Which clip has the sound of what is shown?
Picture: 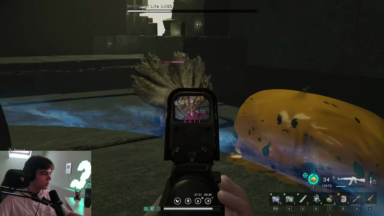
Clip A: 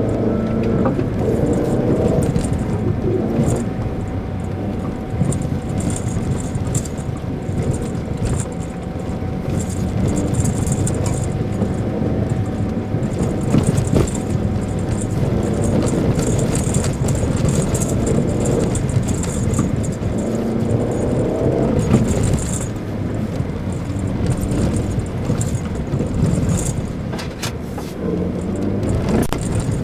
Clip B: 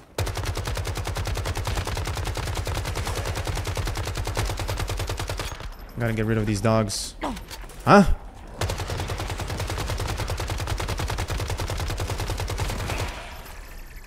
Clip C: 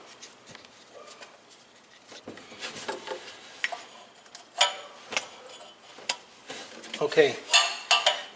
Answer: B